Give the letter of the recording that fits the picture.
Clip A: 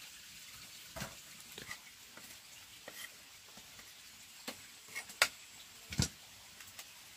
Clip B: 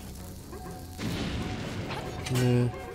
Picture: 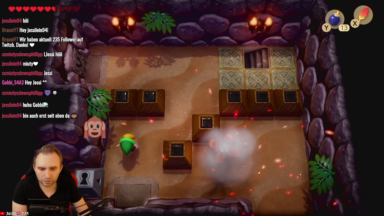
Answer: B